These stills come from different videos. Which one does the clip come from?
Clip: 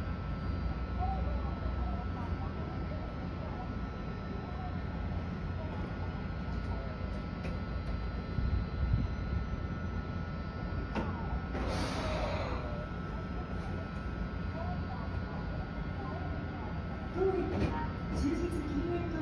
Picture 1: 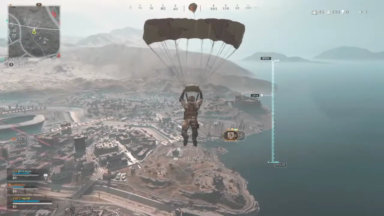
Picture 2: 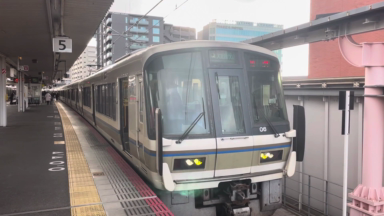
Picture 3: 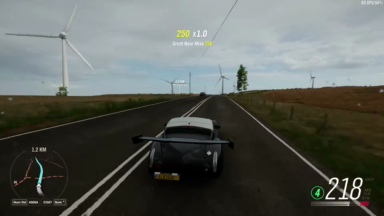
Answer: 2